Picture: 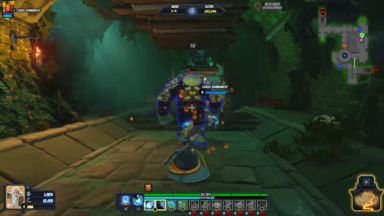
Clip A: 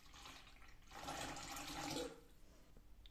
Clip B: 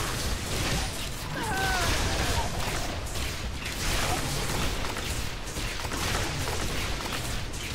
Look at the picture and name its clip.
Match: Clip B